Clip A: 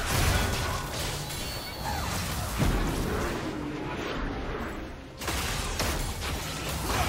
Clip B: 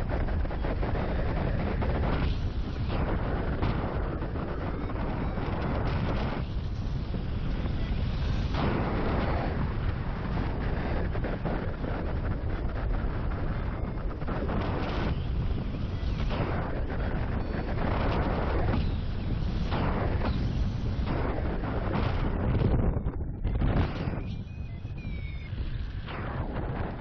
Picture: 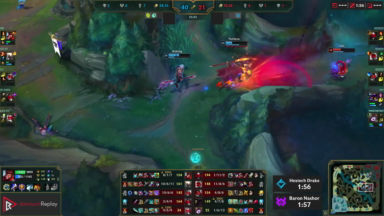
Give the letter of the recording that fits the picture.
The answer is A